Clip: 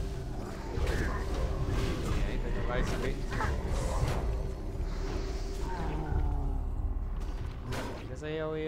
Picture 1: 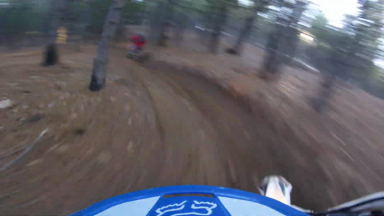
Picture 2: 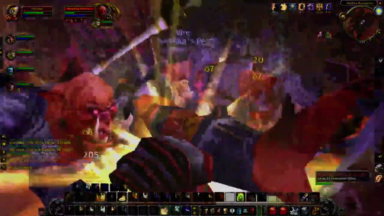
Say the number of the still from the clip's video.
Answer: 2